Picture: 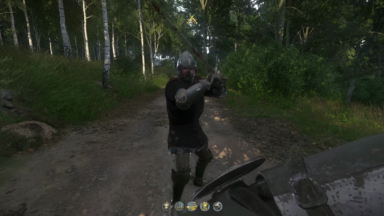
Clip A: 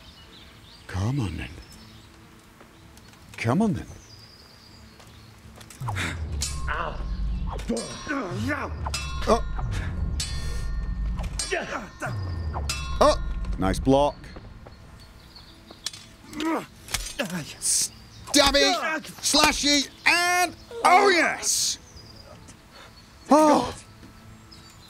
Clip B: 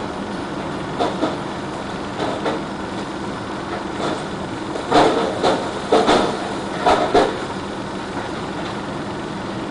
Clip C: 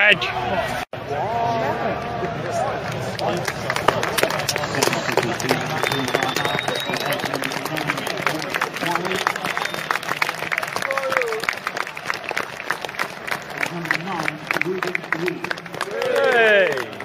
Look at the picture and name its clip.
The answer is A